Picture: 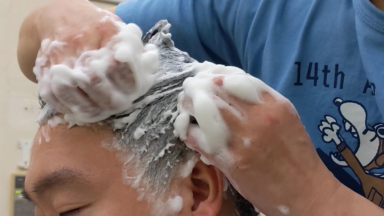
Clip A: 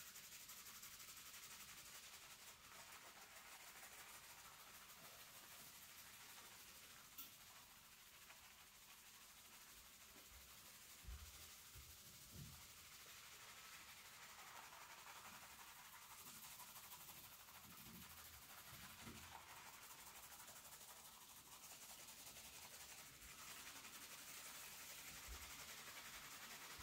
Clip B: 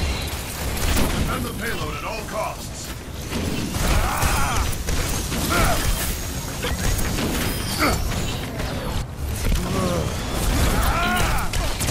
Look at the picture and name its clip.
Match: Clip A